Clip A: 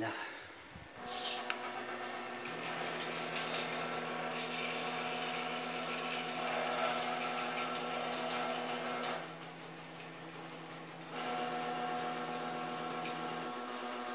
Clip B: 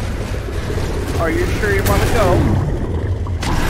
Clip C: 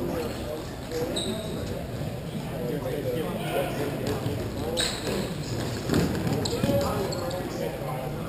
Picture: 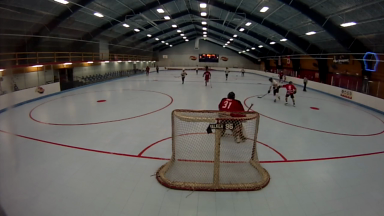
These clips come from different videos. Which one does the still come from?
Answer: C